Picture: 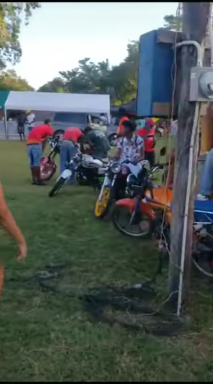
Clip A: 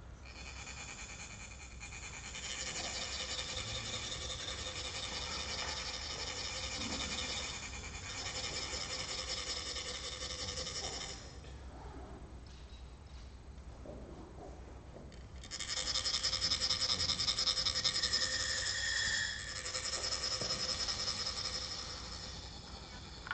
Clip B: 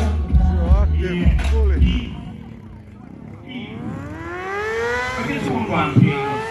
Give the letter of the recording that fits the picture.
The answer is B